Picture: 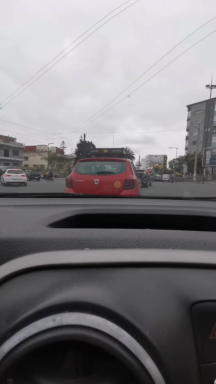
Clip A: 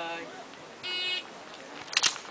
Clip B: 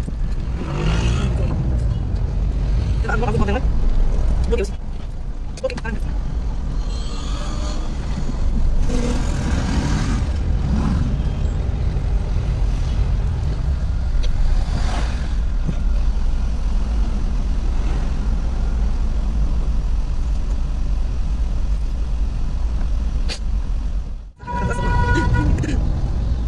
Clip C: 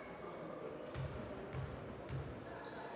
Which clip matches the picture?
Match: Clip B